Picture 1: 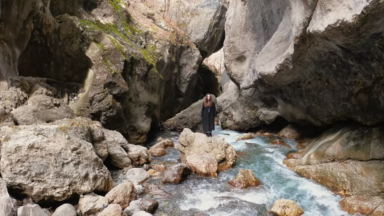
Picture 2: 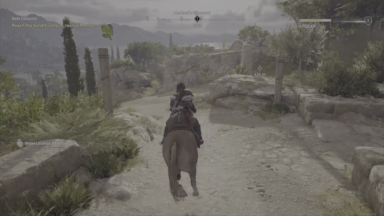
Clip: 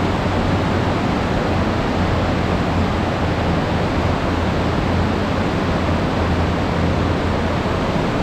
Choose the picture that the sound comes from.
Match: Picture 1